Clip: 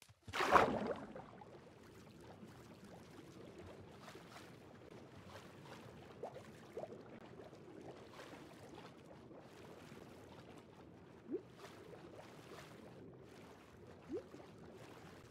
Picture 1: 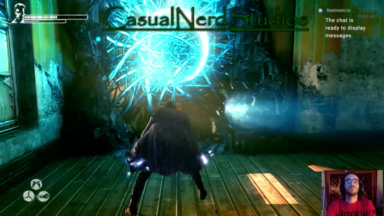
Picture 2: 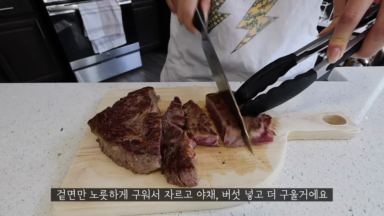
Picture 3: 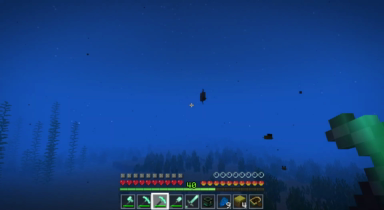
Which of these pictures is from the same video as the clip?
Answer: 3